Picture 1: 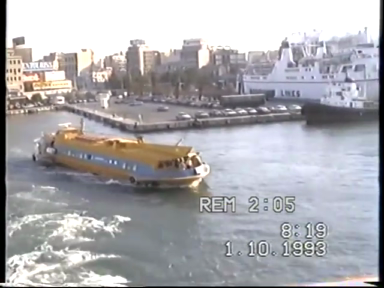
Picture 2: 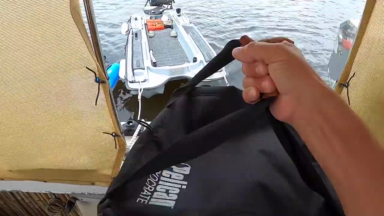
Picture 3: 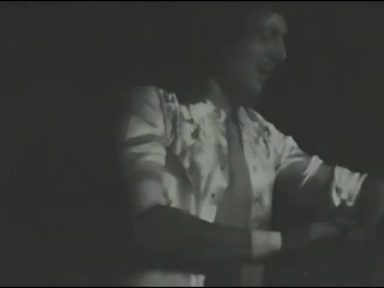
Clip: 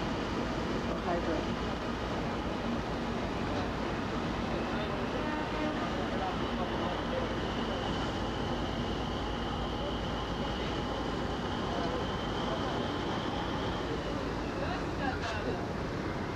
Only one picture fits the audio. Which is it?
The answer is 1